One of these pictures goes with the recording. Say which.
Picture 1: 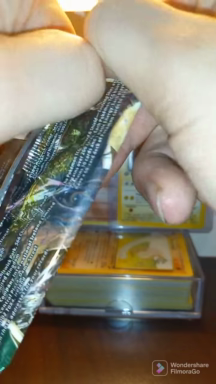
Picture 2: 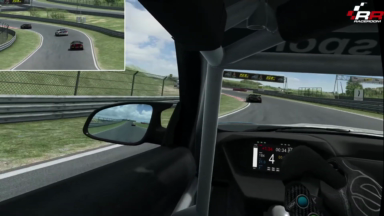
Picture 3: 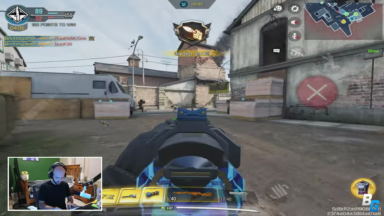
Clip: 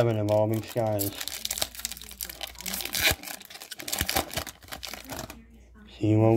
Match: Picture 1